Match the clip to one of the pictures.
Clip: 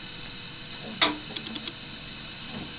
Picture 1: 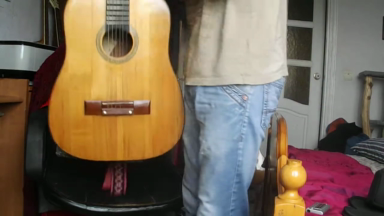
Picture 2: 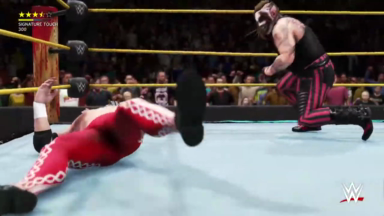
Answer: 1